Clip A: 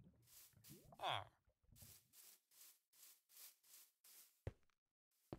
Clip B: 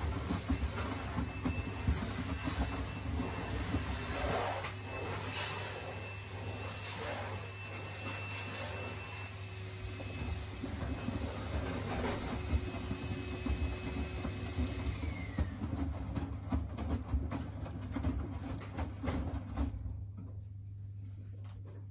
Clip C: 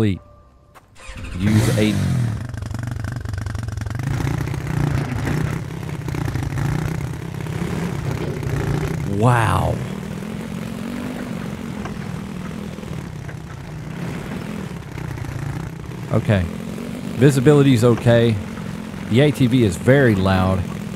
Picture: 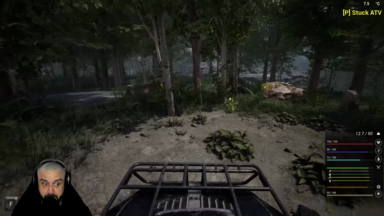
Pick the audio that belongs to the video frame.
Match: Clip C